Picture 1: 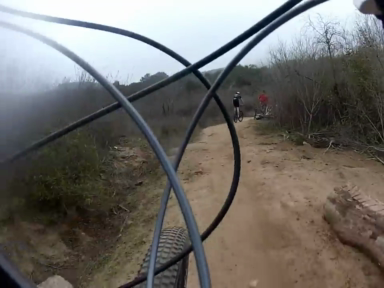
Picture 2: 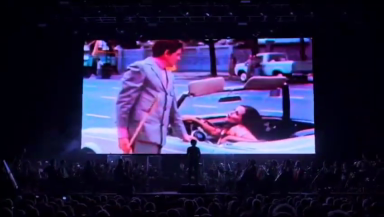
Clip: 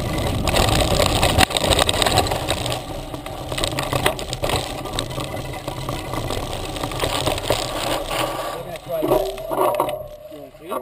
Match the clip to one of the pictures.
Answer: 1